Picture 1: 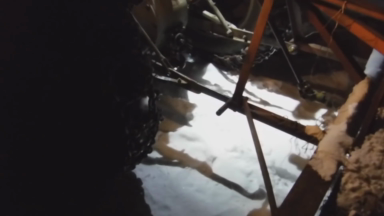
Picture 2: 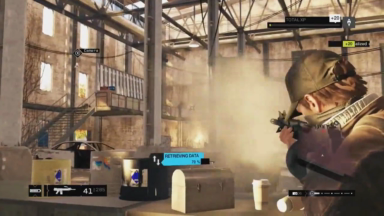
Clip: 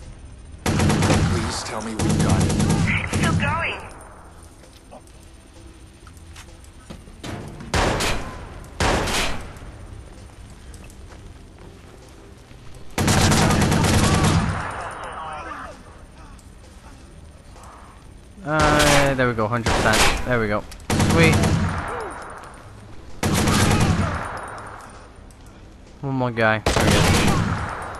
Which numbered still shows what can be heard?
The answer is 2